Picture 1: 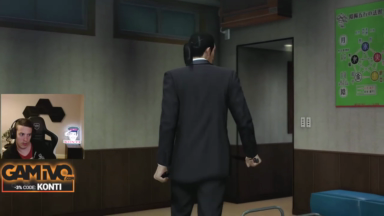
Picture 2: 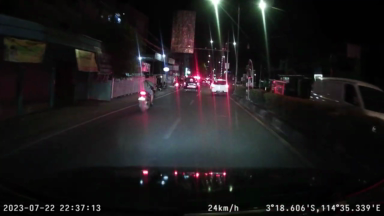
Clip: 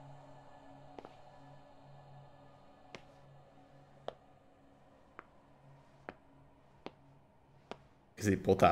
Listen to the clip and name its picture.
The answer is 1